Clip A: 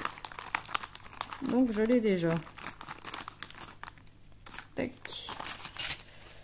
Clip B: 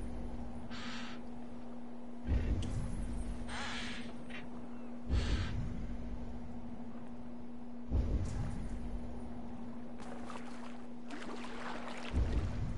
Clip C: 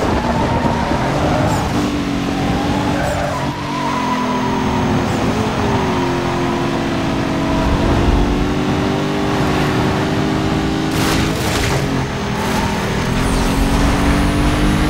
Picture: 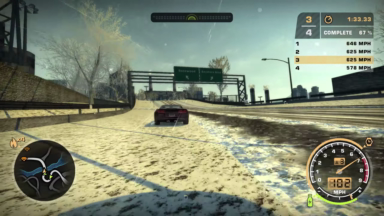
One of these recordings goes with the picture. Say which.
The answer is C